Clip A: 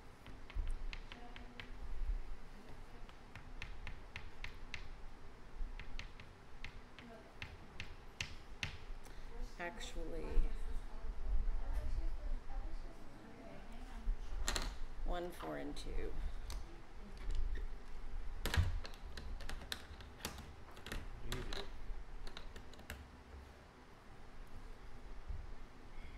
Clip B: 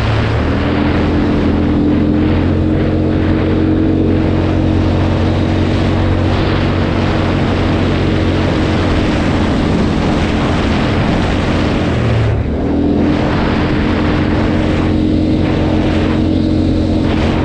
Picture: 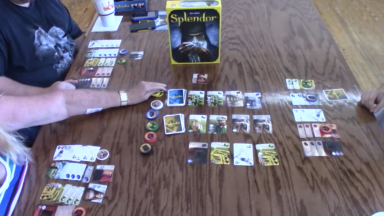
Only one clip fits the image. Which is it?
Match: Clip A